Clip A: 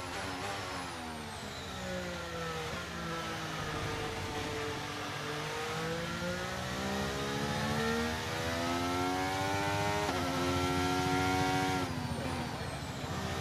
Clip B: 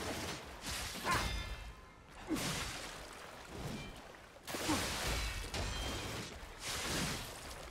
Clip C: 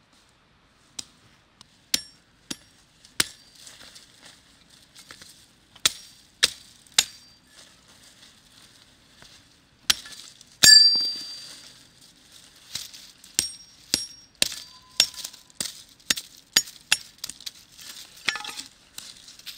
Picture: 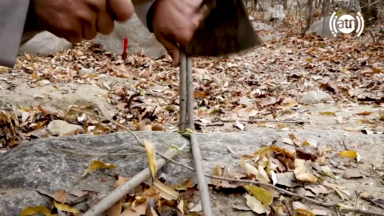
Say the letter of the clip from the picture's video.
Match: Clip C